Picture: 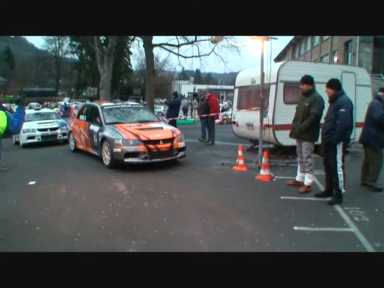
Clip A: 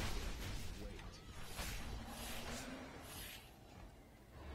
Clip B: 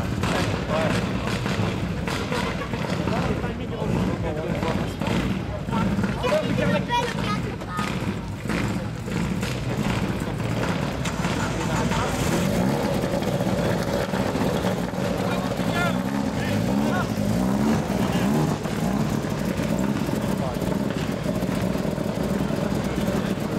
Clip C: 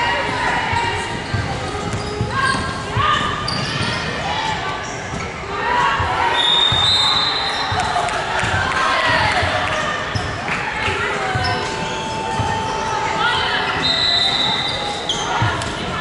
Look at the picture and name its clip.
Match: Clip B